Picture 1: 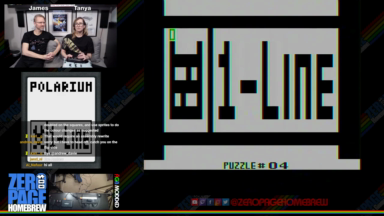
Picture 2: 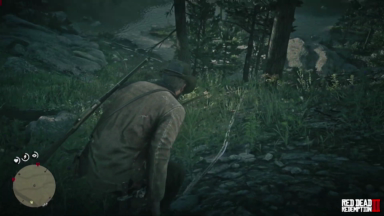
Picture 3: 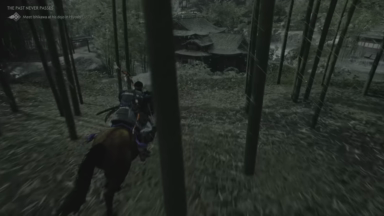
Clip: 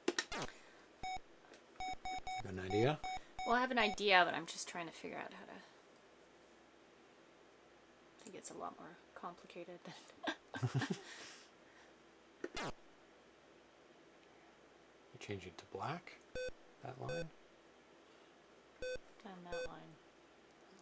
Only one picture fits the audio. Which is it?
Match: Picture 1